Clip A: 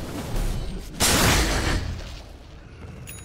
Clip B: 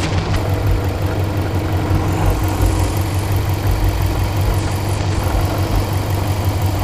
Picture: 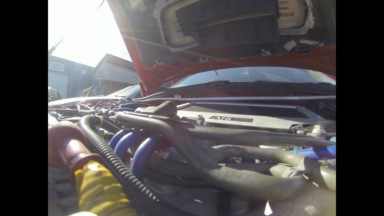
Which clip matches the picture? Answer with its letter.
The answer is B